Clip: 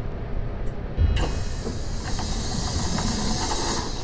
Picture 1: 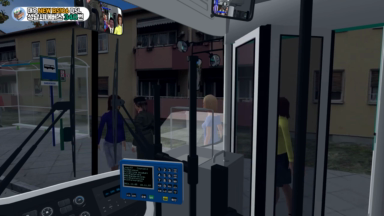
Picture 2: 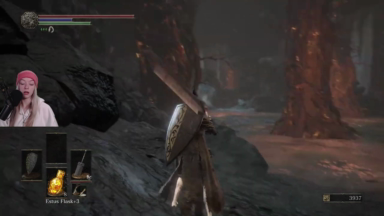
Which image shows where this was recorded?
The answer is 1